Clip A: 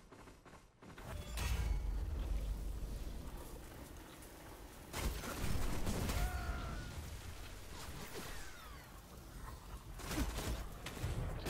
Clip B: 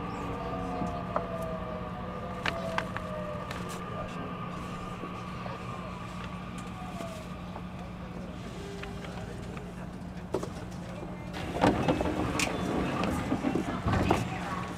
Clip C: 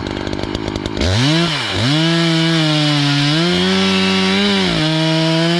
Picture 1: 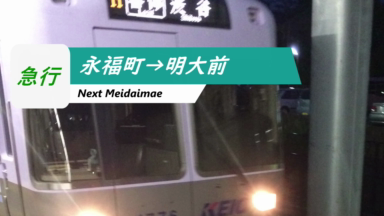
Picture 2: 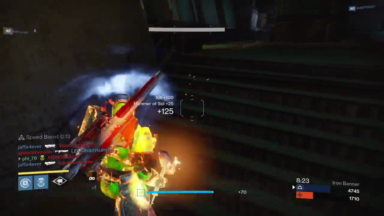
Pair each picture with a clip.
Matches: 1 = B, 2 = A